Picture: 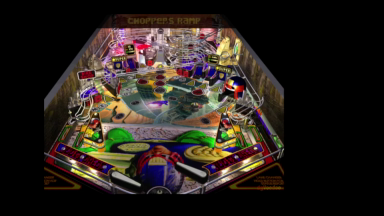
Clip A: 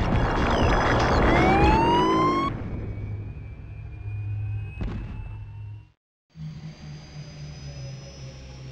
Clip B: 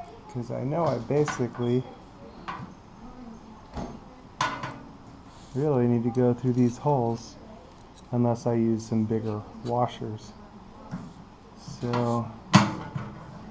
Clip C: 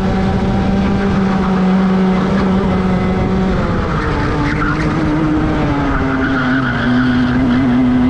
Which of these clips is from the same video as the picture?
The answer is A